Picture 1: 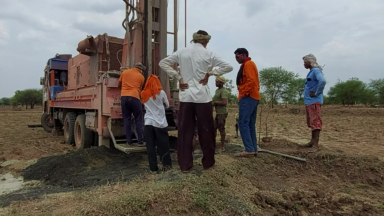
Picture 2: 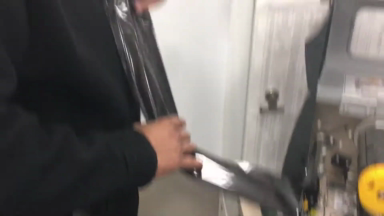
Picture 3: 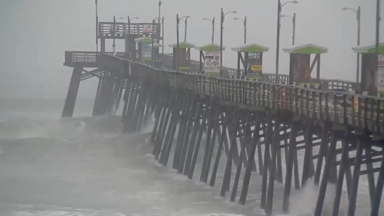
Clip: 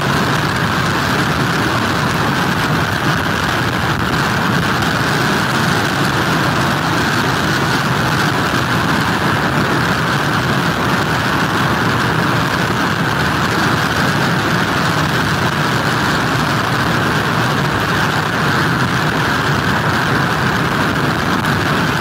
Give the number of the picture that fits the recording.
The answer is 3